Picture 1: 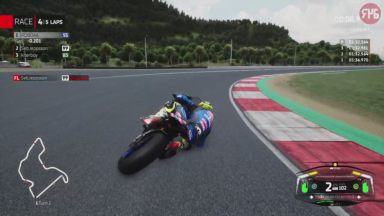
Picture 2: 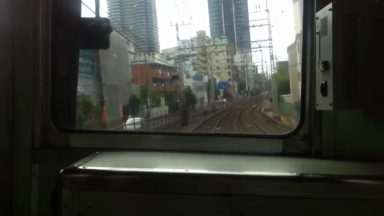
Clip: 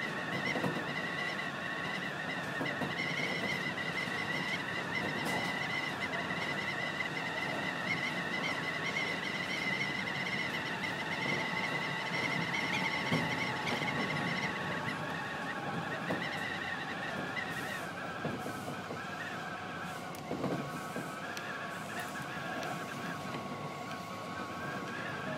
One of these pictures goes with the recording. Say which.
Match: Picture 2